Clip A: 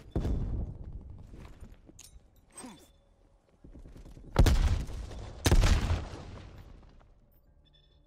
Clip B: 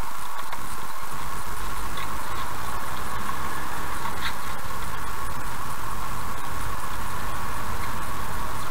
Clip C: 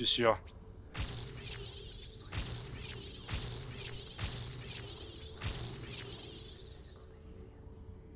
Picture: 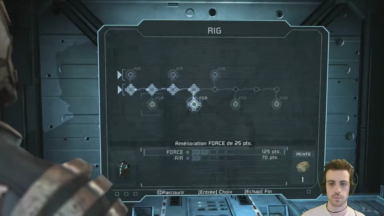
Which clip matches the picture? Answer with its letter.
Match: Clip C